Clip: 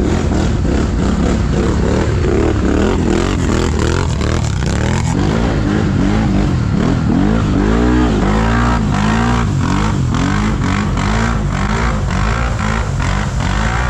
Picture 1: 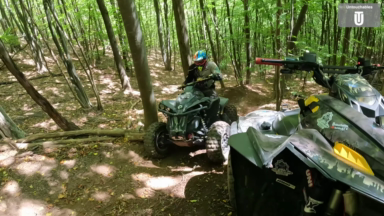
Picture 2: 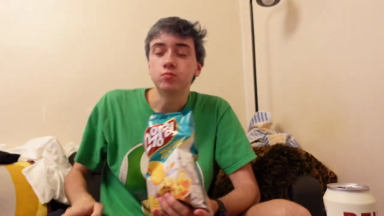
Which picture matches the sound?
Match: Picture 1